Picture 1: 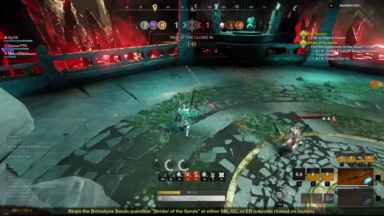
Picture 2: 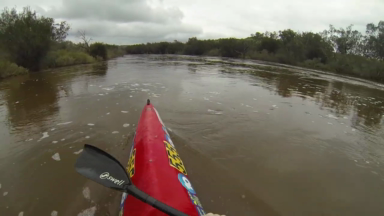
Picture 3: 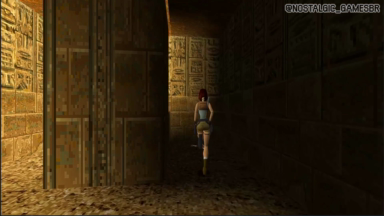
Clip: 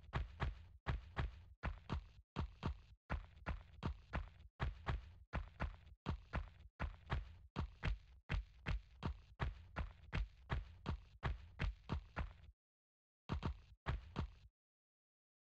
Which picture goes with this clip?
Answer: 3